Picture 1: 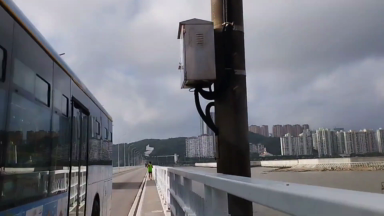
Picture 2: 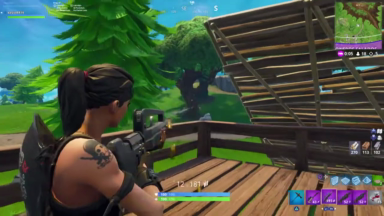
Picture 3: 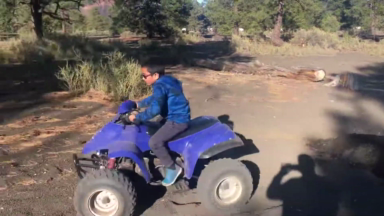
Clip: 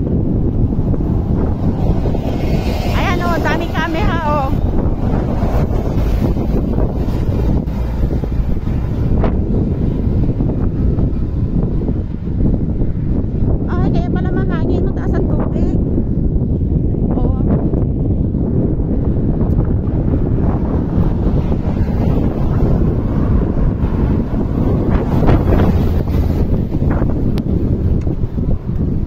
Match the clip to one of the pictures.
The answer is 1